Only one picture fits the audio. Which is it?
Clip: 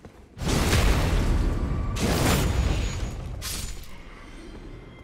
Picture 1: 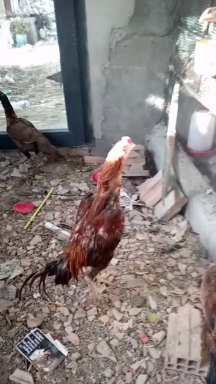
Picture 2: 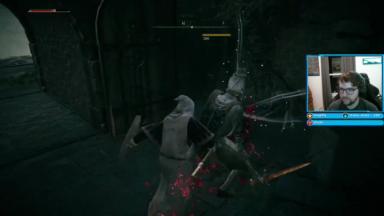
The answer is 2